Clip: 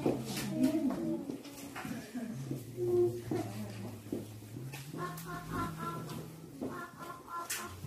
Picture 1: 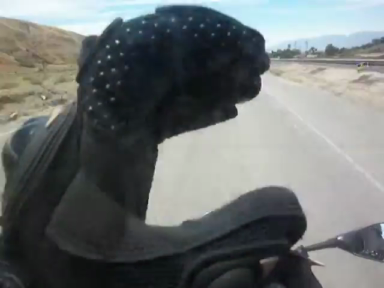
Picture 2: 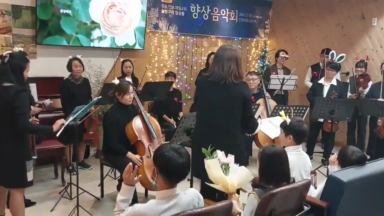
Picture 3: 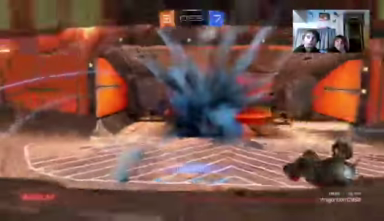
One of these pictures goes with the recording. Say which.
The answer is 2